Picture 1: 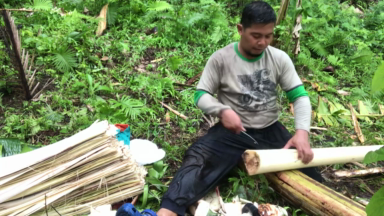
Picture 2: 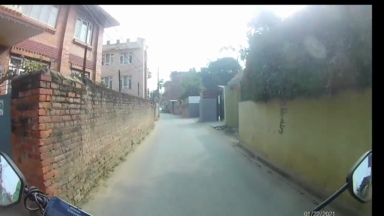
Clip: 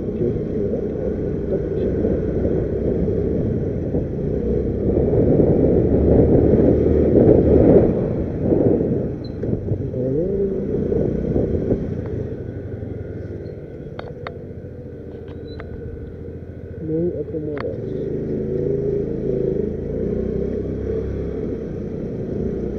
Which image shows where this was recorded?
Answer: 2